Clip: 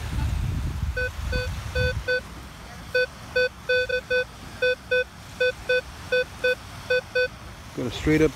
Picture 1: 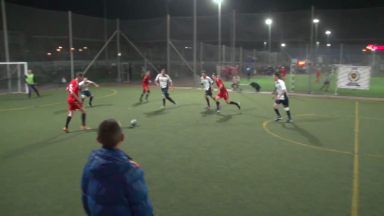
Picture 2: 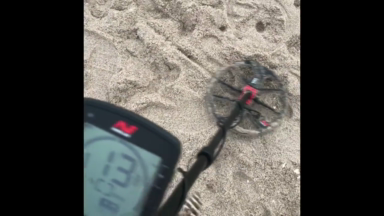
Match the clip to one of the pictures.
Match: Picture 2